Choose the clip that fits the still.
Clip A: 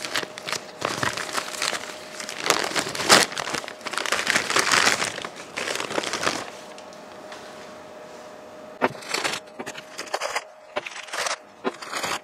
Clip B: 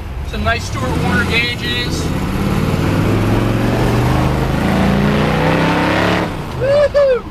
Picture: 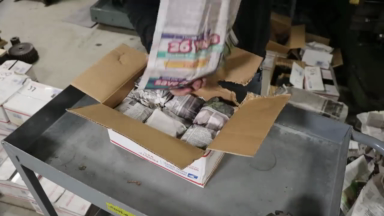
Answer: A